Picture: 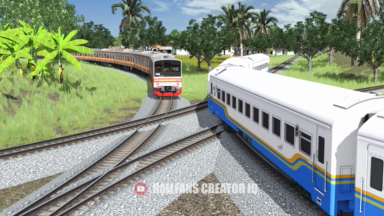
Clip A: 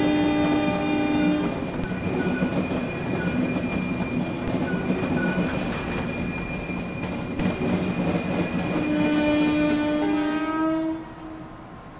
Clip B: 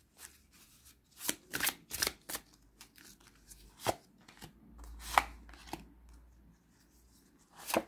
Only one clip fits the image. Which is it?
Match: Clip A